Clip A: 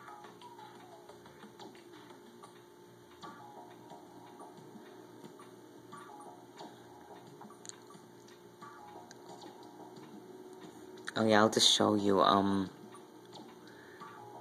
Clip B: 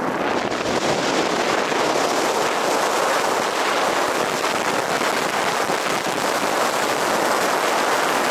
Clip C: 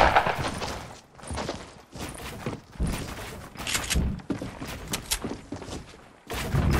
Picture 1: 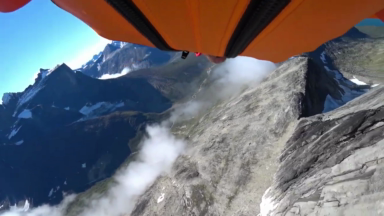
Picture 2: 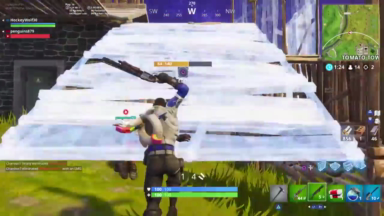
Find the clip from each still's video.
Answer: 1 B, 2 C